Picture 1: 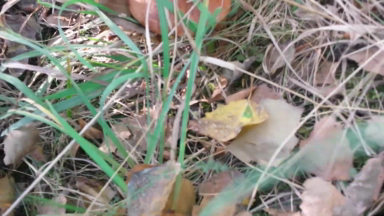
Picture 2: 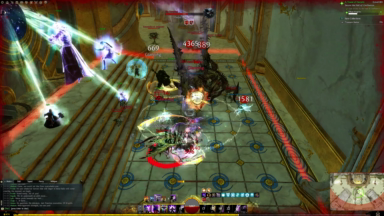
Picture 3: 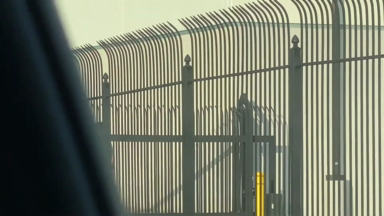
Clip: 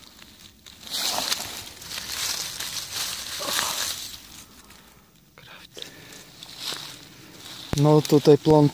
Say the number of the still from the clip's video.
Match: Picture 1